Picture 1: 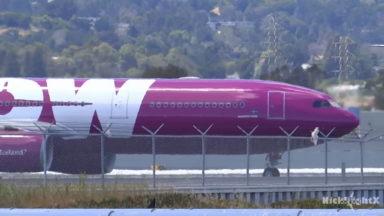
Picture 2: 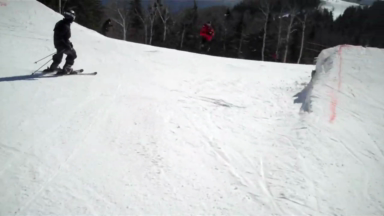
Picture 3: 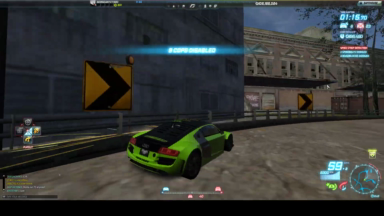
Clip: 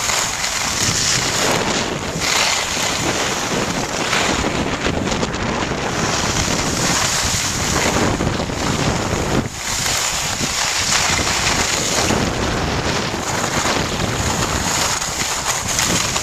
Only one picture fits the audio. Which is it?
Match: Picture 2